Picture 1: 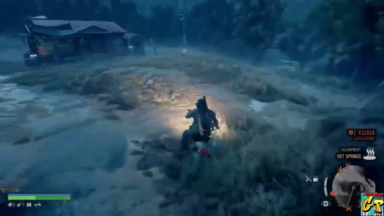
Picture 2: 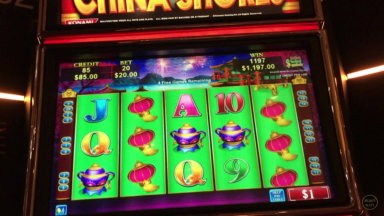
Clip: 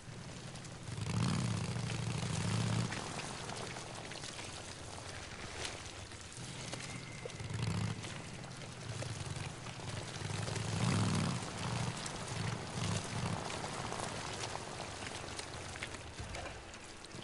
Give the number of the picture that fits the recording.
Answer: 1